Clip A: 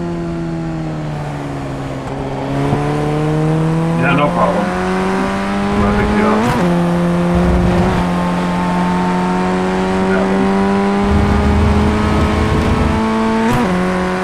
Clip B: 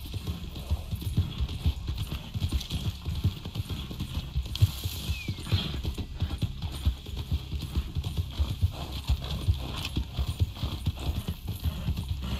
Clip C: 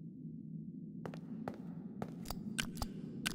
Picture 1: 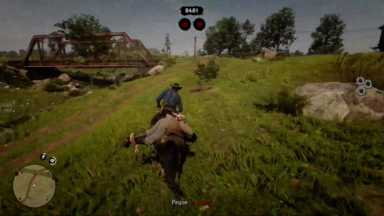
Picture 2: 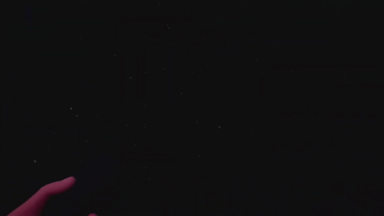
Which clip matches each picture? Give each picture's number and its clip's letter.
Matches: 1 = B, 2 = C